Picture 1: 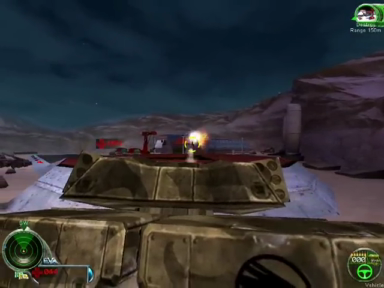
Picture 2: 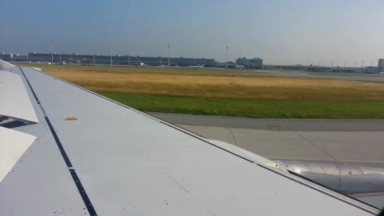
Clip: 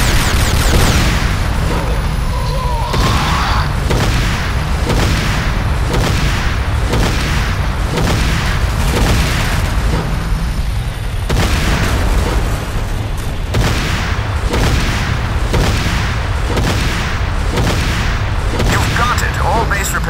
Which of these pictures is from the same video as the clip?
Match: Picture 1